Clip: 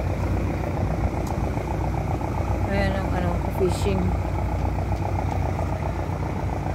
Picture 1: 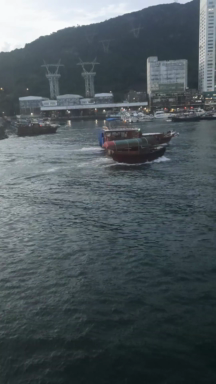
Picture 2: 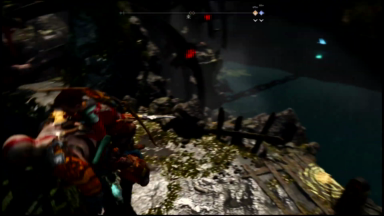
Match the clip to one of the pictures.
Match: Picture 1